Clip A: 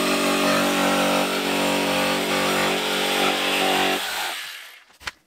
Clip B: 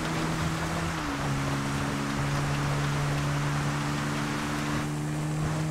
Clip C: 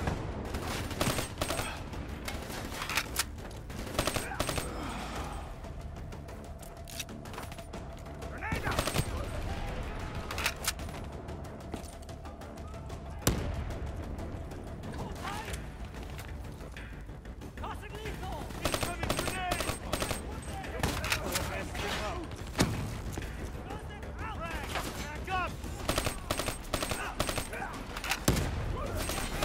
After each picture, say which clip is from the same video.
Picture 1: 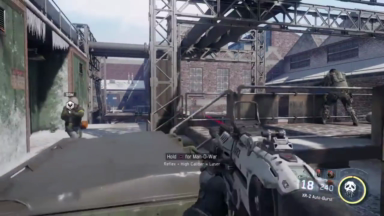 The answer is C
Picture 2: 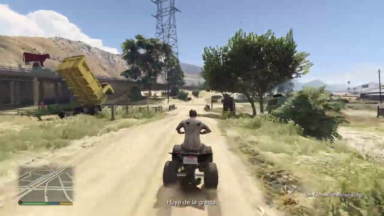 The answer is B